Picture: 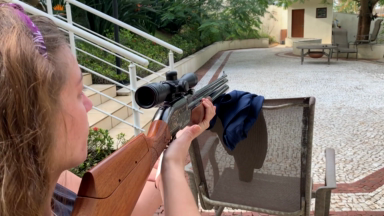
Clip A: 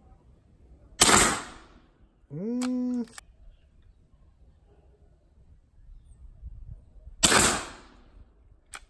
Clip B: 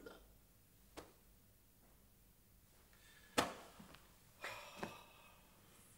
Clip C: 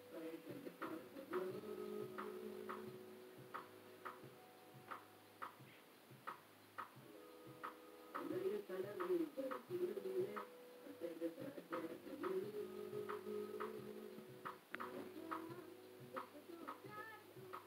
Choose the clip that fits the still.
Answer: A